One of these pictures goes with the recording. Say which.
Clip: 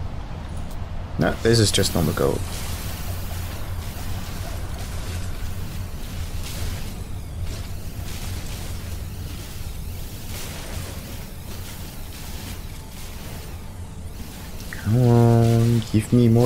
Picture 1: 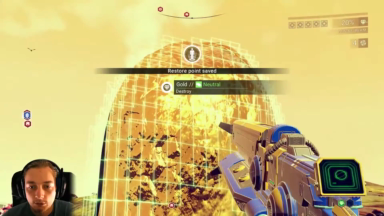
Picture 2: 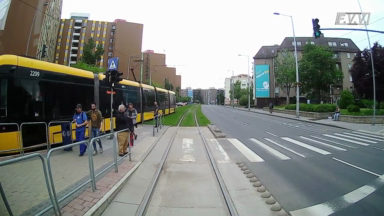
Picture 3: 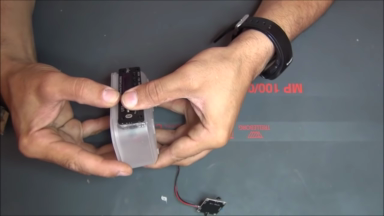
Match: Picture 1